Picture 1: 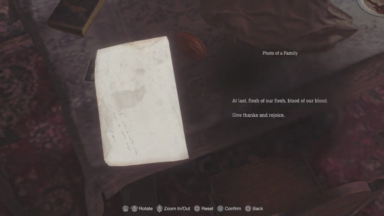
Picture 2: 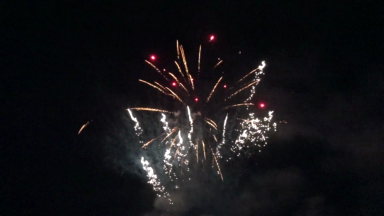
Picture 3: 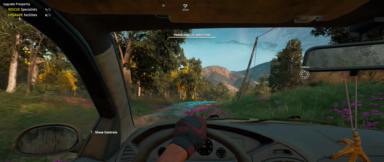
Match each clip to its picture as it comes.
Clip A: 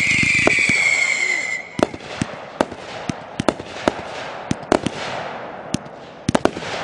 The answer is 2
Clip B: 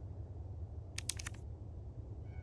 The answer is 1